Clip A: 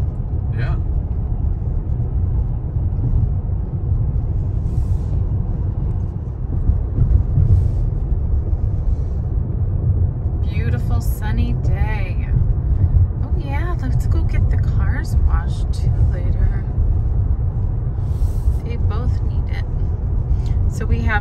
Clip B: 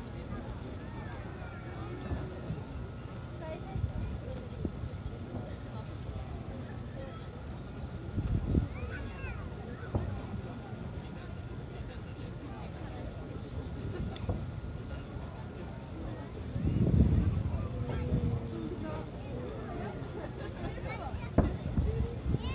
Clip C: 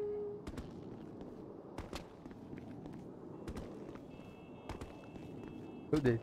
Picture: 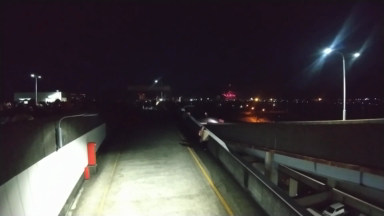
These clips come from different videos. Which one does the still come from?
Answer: B